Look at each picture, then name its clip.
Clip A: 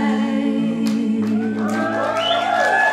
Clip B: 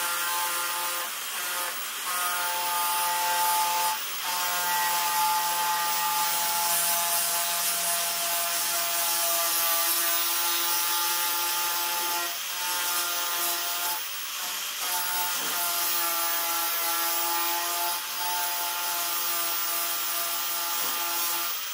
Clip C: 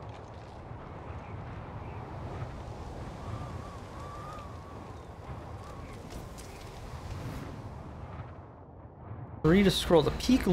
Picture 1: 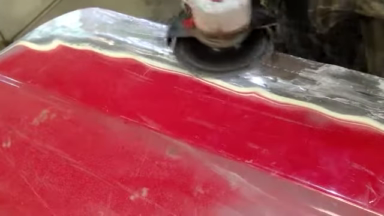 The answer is B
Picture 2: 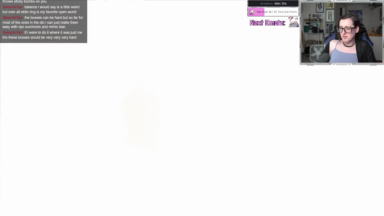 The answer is C